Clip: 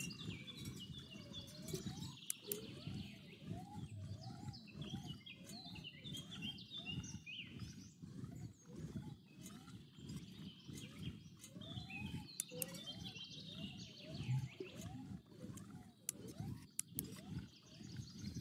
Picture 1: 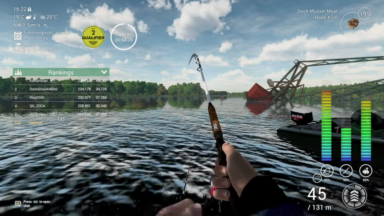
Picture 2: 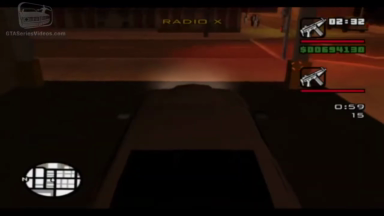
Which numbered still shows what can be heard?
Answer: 1